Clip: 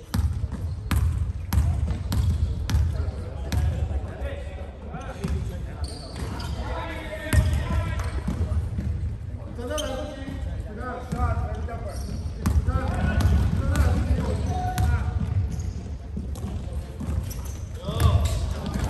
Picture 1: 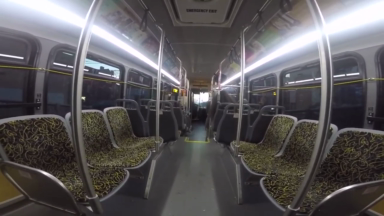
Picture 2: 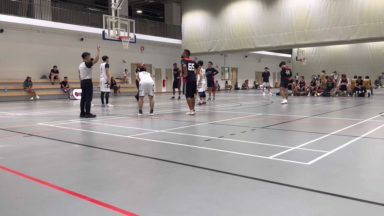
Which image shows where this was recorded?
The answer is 2